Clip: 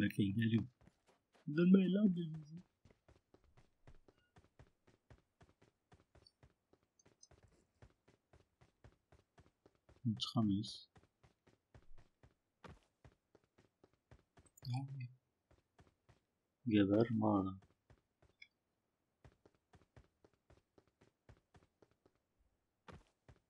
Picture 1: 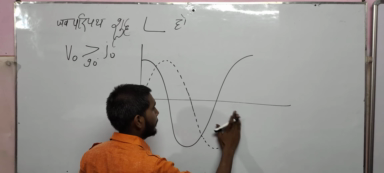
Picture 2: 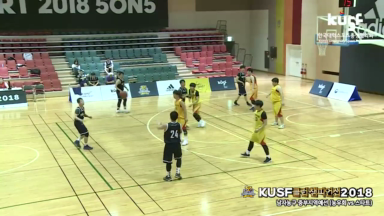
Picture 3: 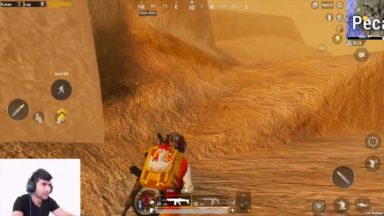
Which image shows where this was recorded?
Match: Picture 3